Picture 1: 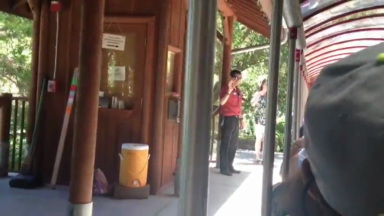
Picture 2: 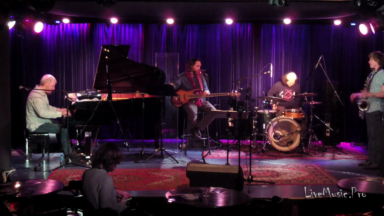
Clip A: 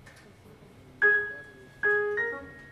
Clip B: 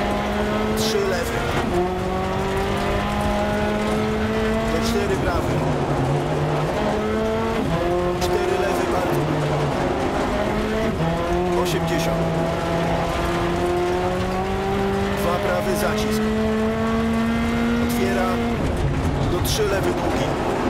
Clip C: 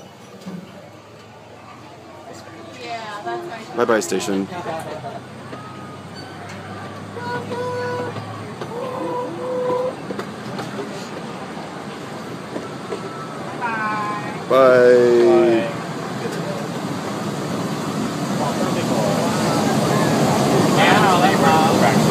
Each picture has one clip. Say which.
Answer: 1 C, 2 A